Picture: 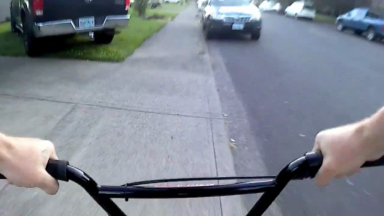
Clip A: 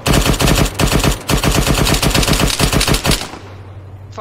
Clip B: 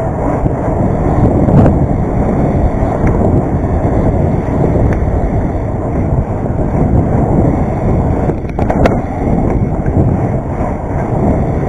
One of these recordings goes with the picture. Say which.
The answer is B